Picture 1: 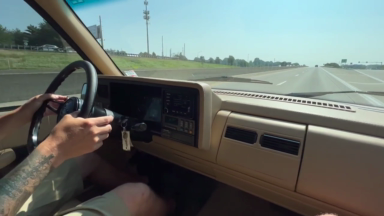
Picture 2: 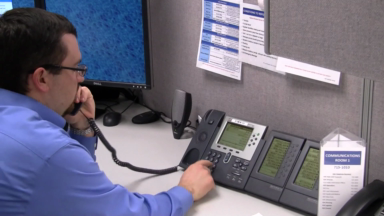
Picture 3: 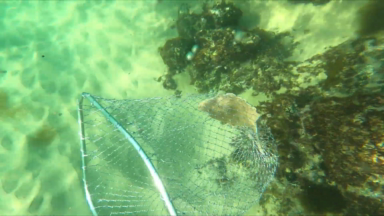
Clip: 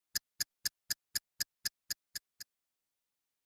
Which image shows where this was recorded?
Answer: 2